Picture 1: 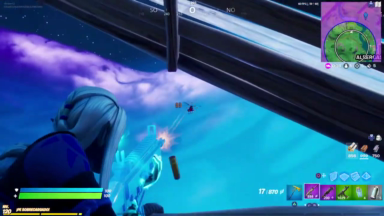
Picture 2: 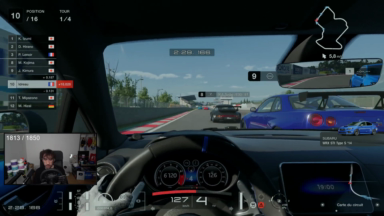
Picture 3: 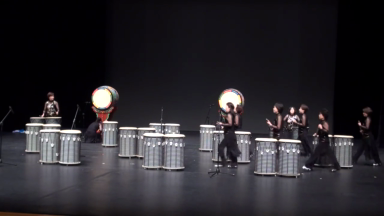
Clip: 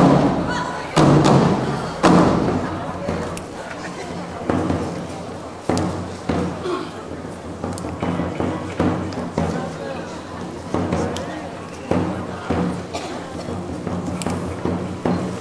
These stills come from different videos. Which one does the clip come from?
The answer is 3